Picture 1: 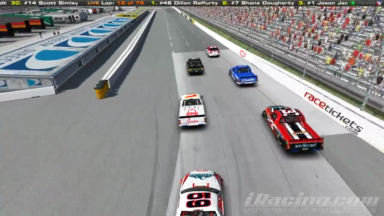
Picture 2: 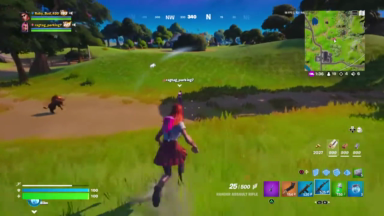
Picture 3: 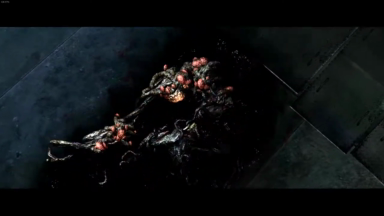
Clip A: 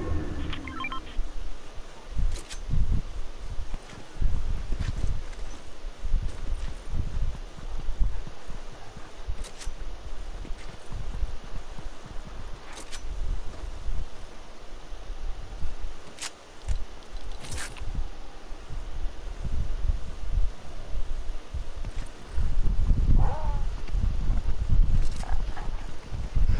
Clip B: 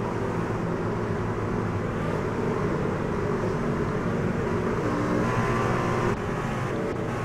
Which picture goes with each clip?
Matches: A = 2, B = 1